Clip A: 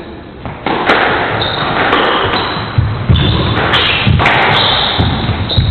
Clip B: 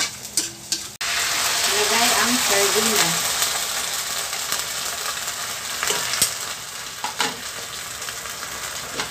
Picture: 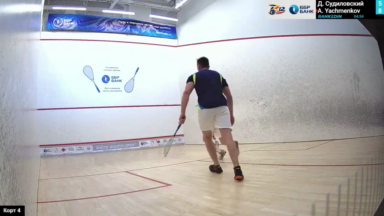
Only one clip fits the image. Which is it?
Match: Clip A